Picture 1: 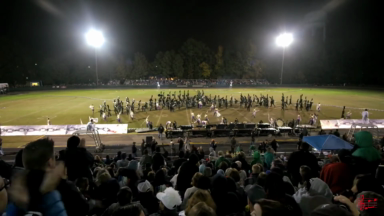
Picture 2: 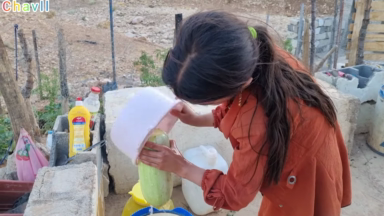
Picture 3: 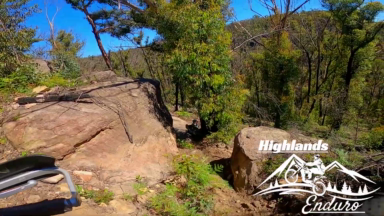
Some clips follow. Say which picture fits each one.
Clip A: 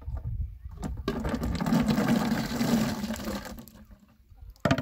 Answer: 2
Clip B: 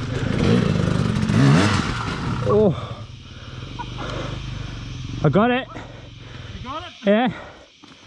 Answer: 3